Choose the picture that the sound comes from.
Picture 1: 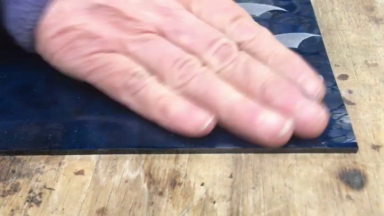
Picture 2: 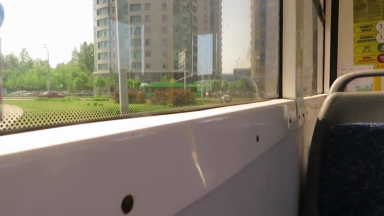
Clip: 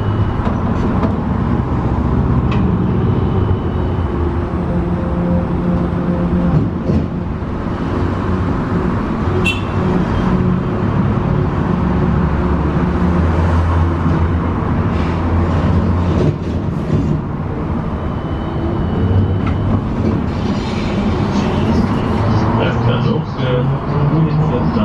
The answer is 2